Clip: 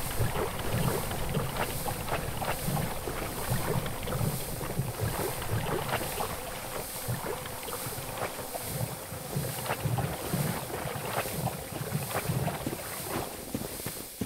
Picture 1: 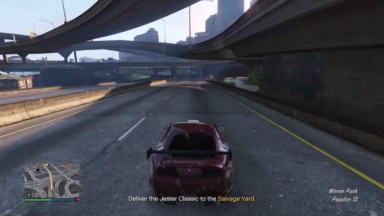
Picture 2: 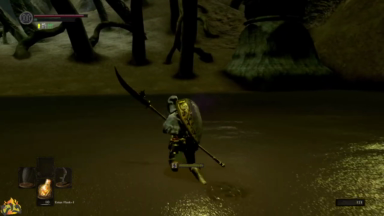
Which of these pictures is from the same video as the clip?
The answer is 2